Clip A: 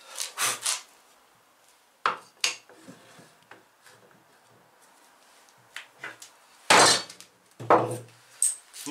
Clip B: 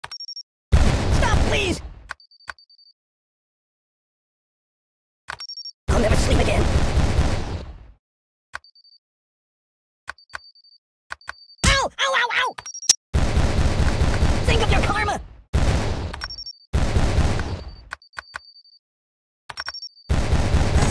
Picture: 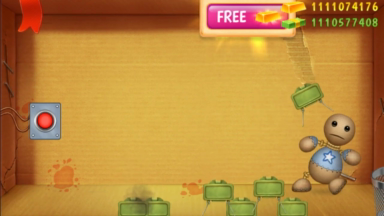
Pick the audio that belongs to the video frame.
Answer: B